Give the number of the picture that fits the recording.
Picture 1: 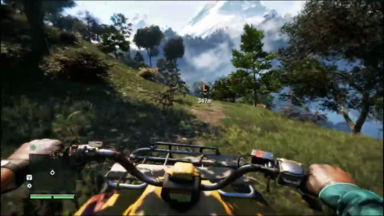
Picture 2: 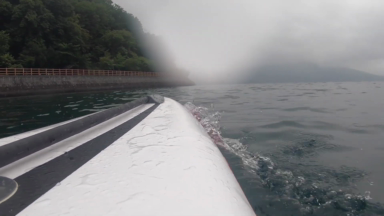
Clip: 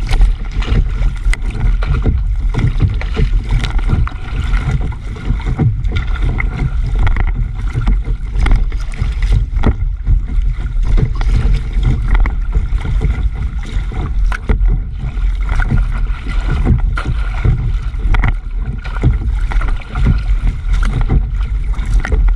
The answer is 2